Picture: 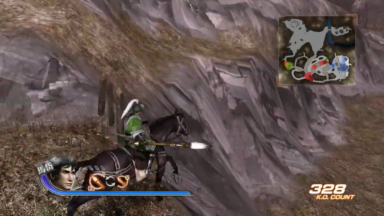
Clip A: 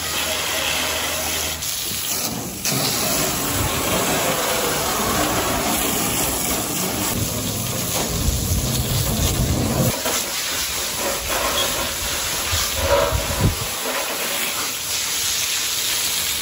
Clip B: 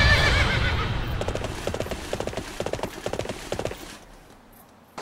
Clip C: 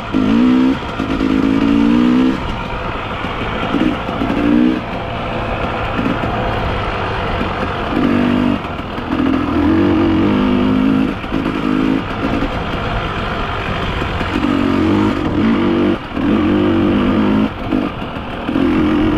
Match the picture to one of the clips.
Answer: B